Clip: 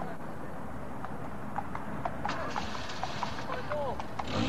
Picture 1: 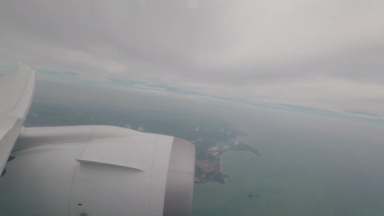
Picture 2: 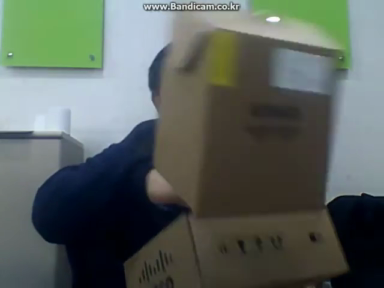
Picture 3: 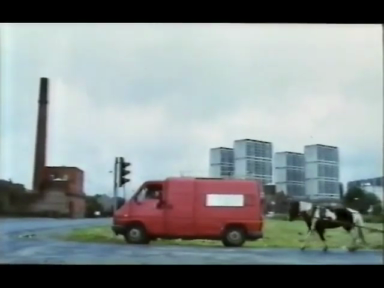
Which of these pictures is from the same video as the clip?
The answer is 3